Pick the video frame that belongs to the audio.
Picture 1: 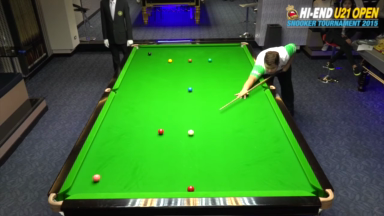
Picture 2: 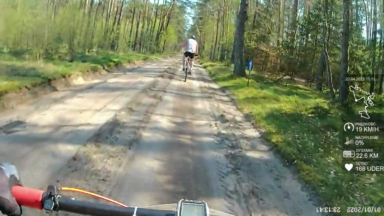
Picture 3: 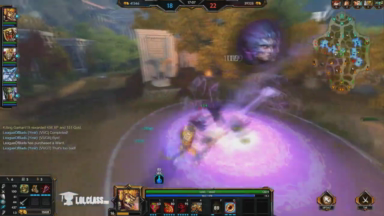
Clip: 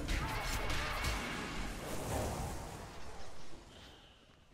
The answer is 3